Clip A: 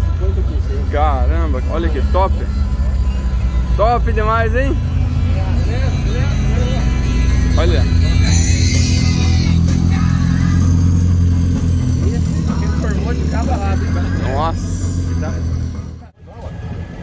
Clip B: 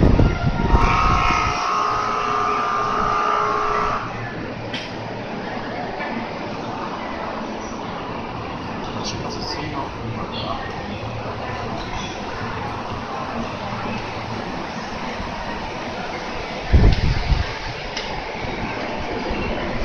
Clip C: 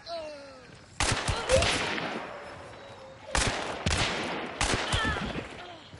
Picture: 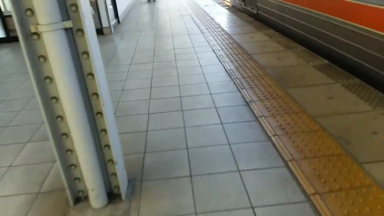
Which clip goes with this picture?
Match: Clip B